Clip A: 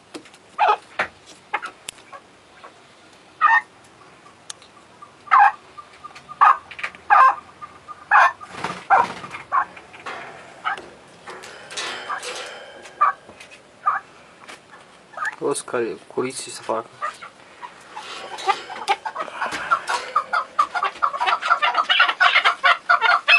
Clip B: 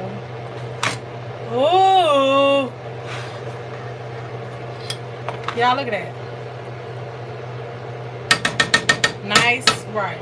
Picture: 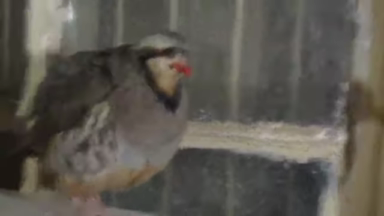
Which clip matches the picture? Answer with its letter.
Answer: A